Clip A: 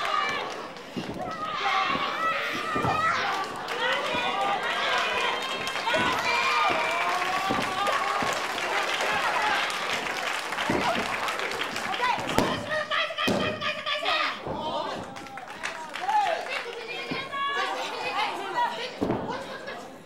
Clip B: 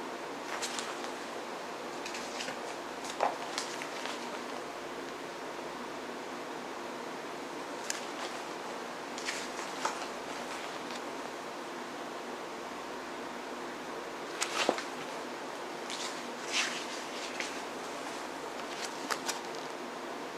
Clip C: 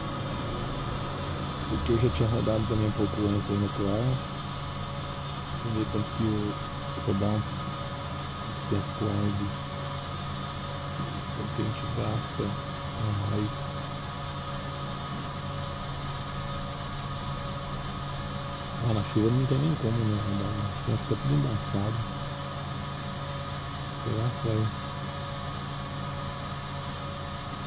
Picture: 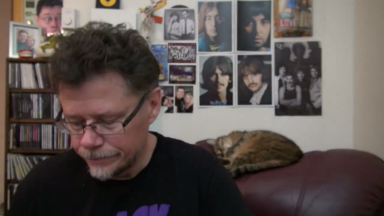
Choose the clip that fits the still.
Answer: B